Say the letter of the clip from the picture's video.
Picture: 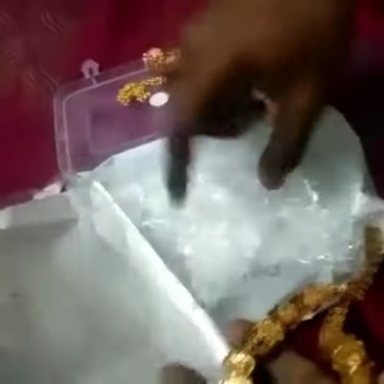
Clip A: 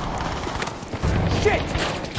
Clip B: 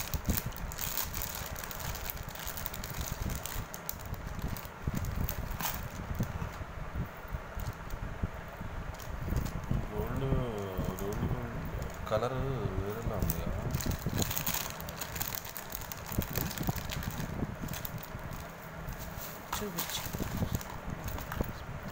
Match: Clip B